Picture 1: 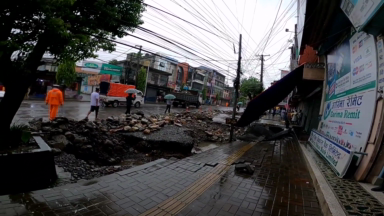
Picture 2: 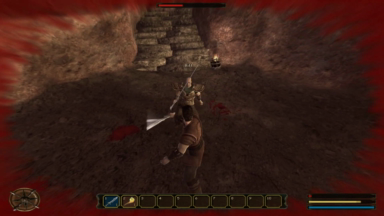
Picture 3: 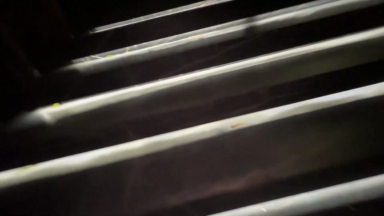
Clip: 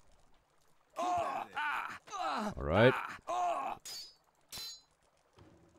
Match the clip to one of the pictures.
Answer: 2